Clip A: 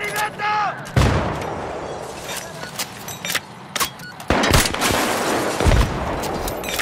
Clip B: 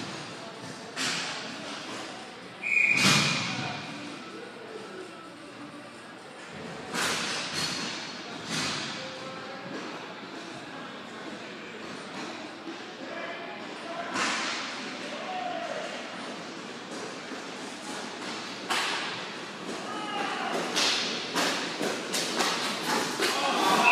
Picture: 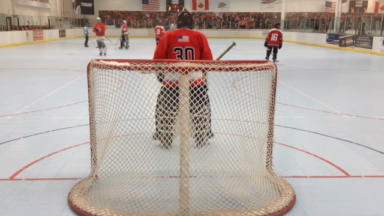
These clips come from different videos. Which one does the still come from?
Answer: B